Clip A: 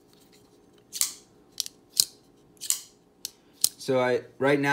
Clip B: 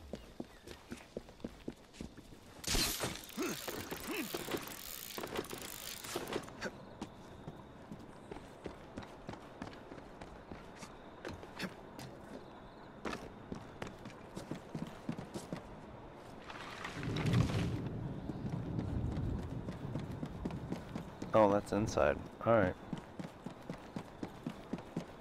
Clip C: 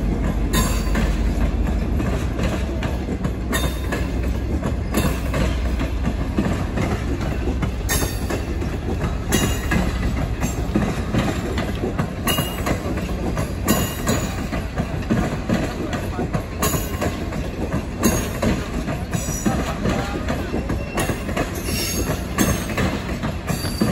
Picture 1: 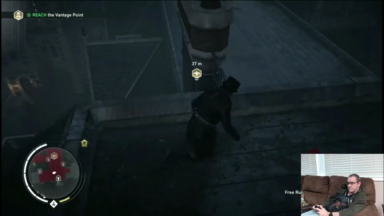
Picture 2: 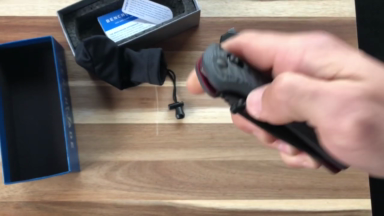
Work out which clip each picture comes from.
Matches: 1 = B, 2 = A